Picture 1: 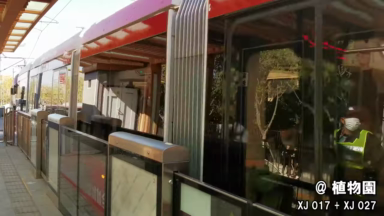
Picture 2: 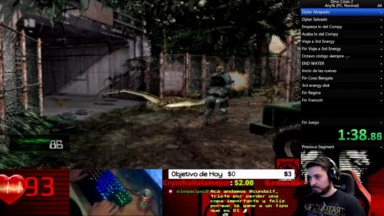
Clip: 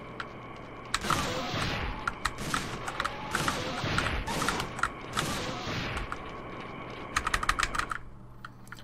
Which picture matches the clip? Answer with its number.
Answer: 2